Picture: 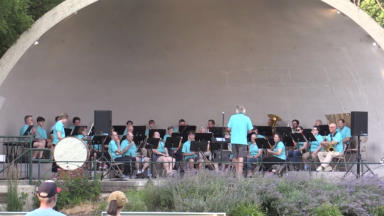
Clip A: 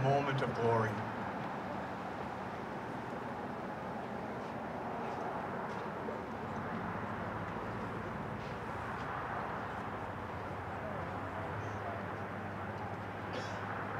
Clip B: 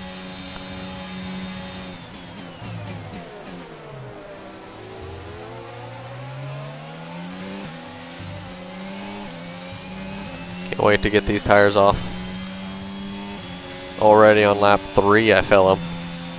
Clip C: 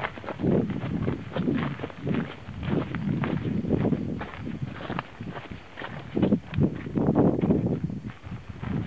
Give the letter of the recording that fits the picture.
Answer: A